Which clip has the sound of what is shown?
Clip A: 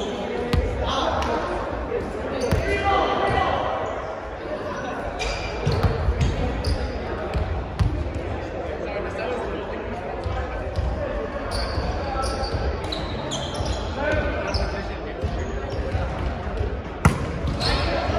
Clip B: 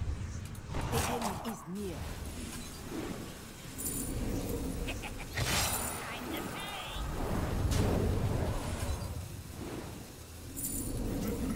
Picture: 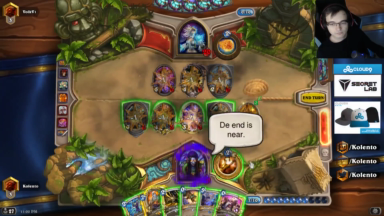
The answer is B